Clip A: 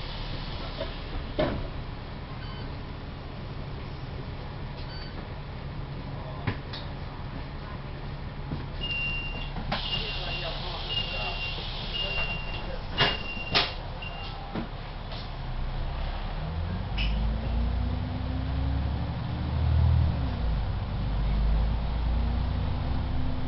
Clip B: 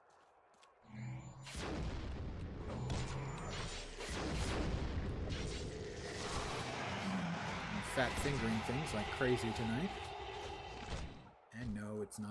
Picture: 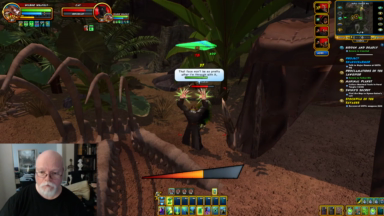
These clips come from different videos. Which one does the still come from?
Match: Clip B